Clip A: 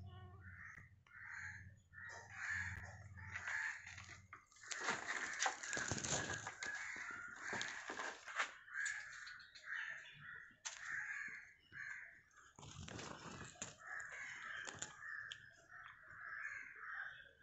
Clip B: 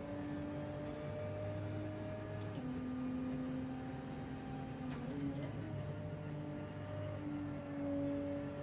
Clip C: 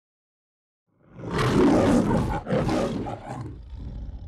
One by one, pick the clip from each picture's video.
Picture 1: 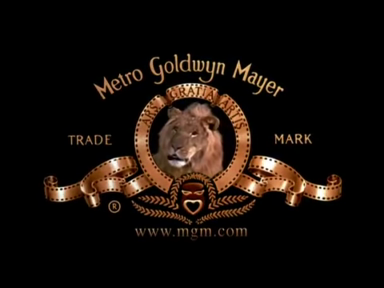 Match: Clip C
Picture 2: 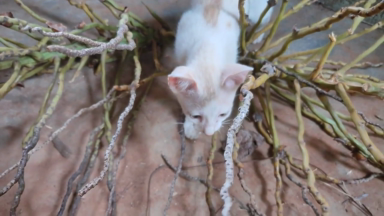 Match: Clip A